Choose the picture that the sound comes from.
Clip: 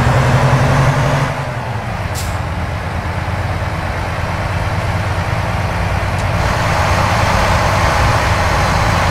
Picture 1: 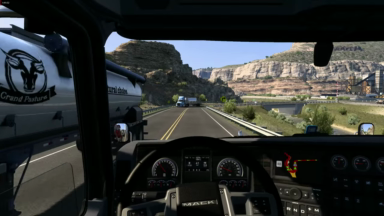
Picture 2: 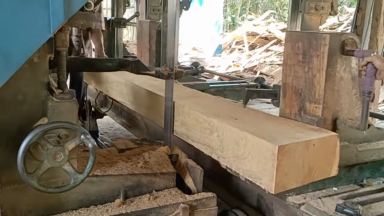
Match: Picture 1